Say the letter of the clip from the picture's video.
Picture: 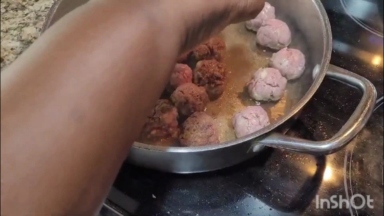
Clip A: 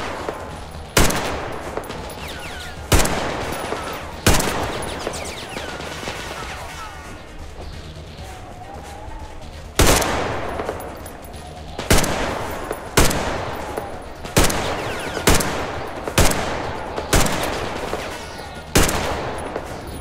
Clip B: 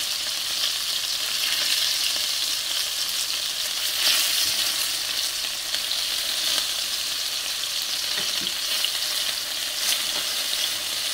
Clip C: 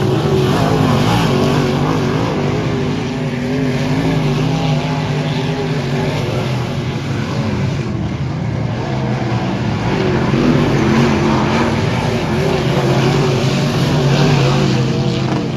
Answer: B